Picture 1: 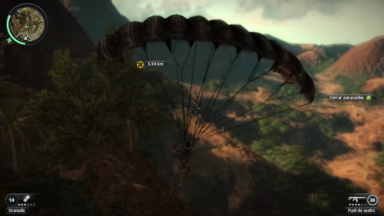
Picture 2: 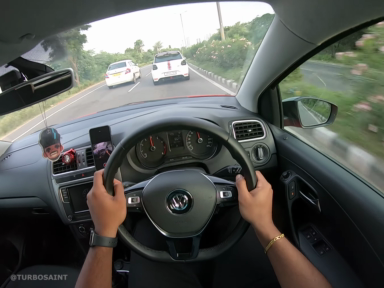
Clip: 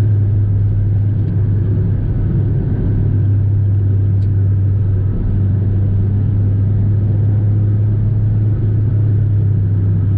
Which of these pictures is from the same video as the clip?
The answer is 2